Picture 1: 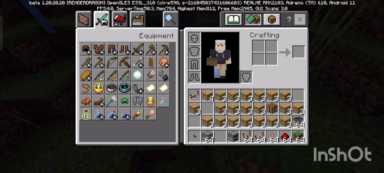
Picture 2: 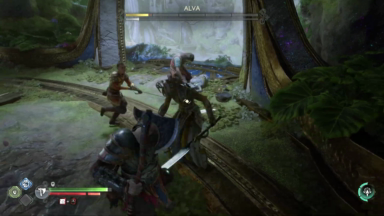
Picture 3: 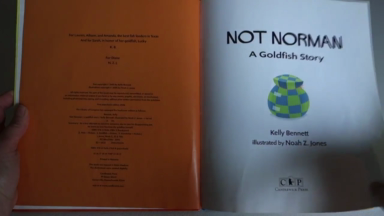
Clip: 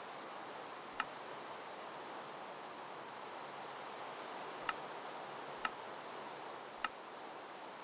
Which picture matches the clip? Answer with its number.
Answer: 1